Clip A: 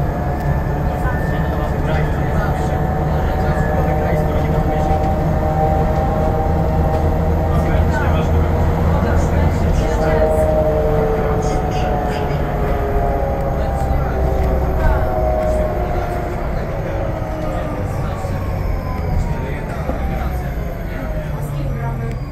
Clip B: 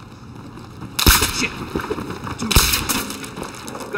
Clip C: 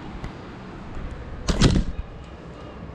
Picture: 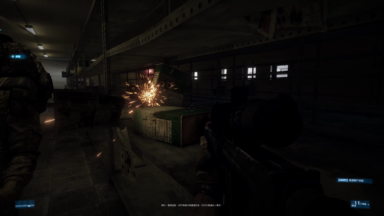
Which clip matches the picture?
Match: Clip B